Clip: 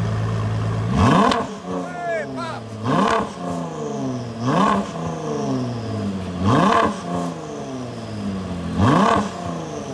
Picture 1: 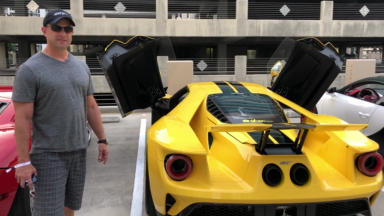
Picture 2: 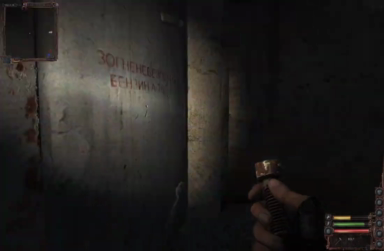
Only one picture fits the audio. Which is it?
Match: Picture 1